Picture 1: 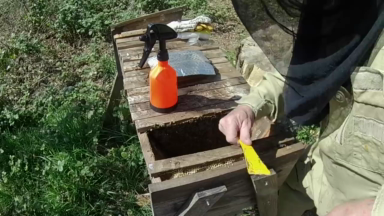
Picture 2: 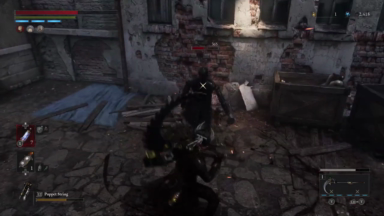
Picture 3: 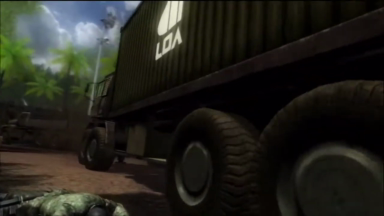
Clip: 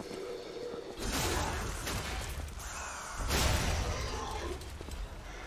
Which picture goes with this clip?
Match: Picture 2